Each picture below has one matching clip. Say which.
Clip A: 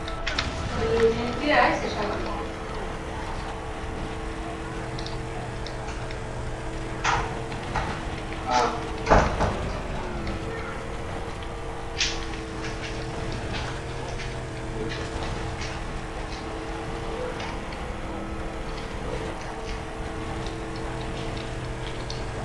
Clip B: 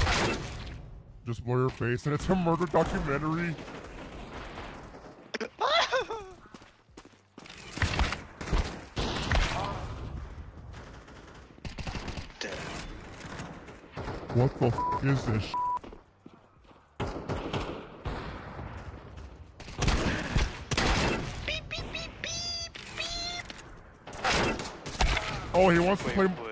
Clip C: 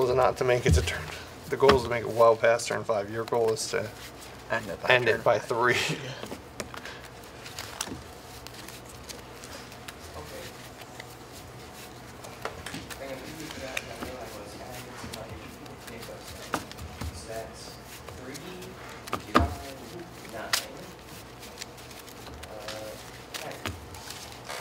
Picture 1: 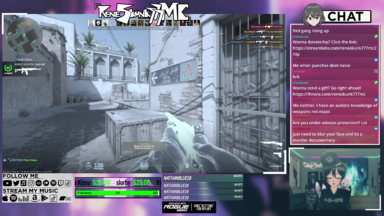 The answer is B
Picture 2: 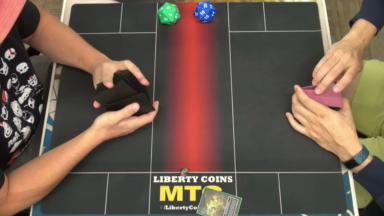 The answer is C